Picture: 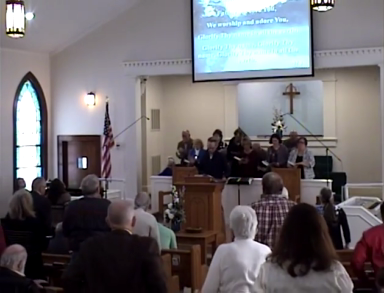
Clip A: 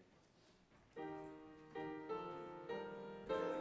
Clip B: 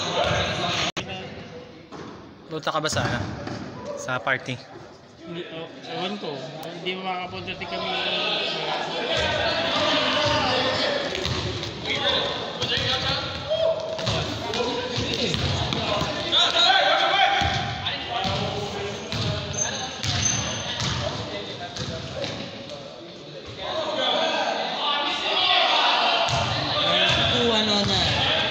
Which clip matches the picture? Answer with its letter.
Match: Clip A